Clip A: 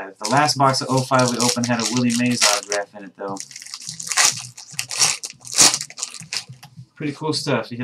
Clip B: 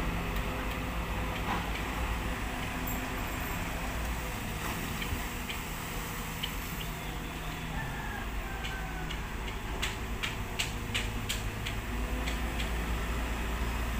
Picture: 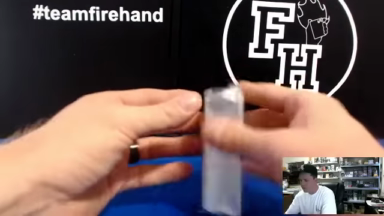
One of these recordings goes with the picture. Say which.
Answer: A